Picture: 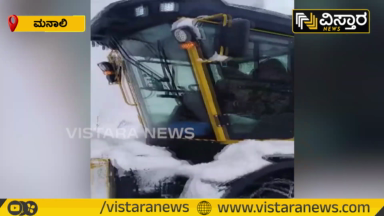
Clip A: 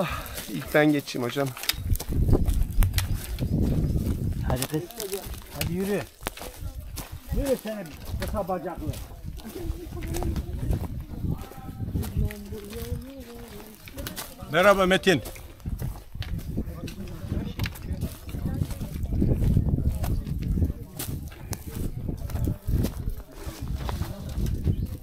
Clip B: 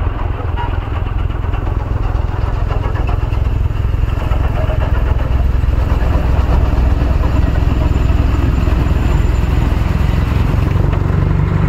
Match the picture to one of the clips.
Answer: B